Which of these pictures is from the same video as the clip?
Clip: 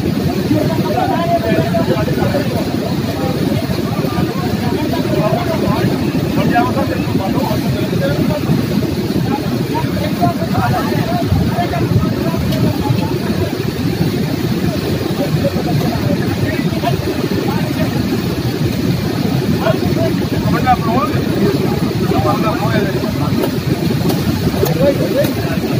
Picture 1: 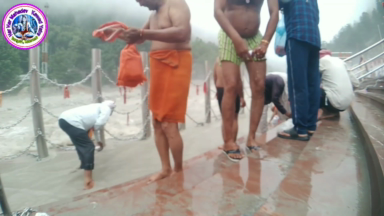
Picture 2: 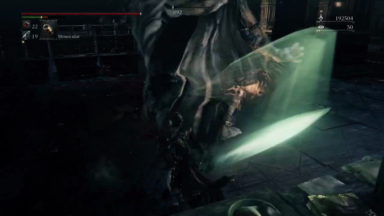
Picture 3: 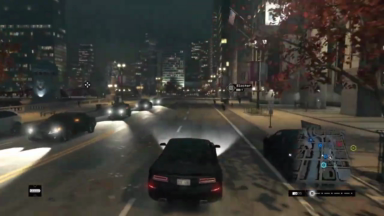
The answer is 1